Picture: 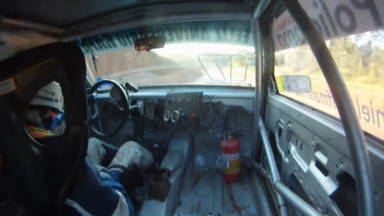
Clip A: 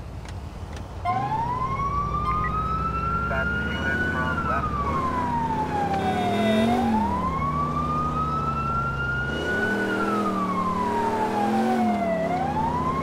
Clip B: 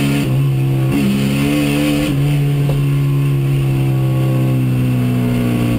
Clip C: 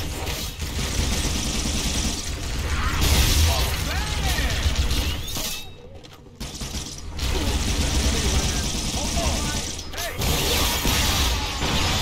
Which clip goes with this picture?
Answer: B